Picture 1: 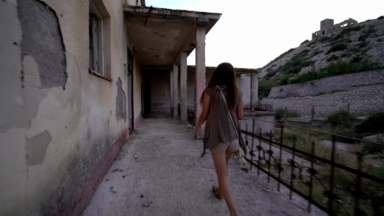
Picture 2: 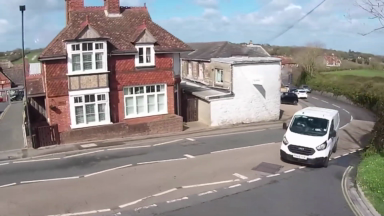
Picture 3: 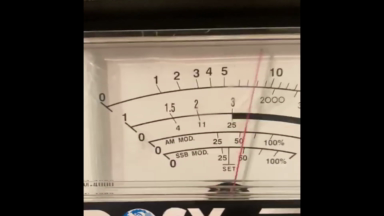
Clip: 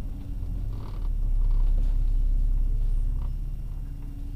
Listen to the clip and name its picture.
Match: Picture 2